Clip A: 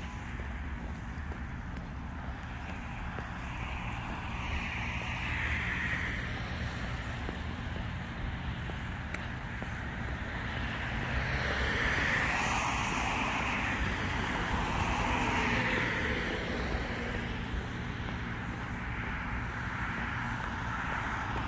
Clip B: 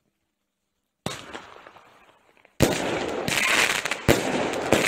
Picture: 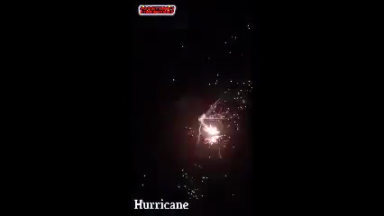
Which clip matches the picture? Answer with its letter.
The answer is B